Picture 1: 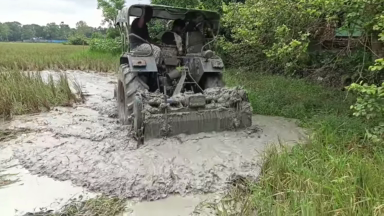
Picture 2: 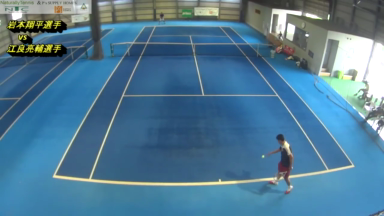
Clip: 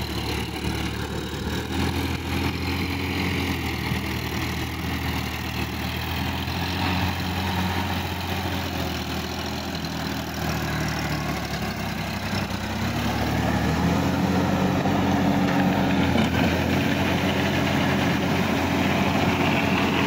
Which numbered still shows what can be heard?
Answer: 1